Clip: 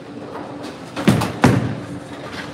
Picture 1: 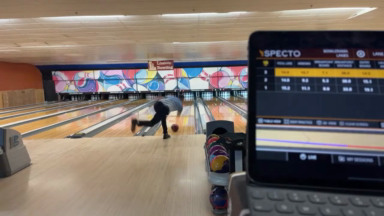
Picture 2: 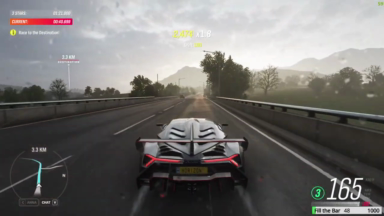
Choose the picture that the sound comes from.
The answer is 1